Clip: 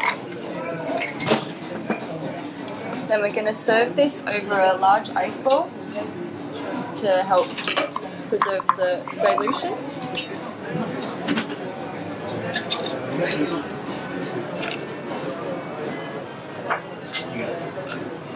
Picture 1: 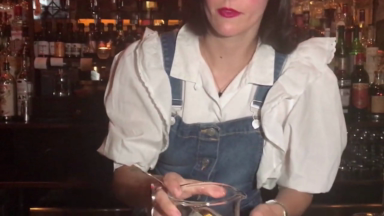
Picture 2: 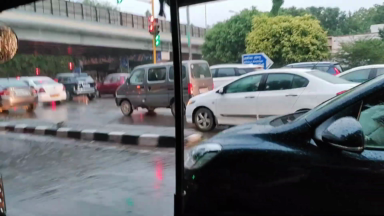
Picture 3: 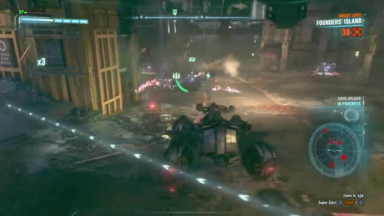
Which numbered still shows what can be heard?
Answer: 1